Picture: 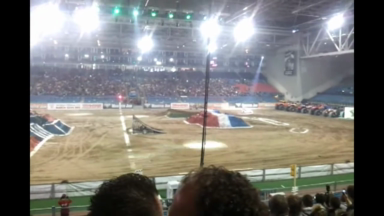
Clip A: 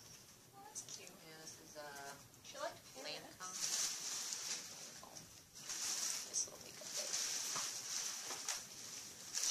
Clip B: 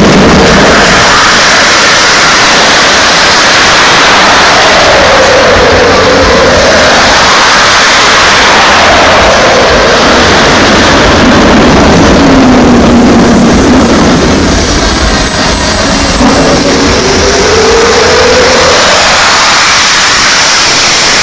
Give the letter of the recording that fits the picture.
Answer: B